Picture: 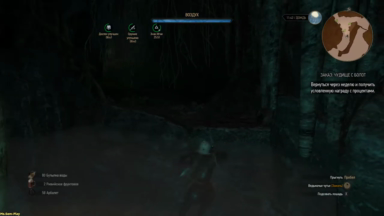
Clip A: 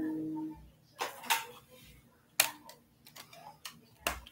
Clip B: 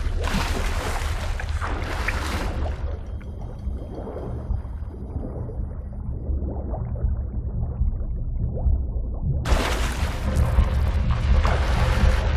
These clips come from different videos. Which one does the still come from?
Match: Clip B